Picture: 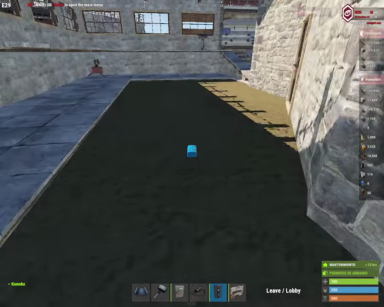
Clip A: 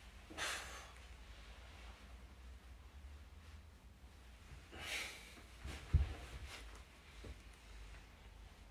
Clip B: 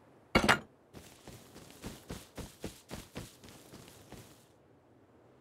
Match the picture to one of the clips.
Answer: B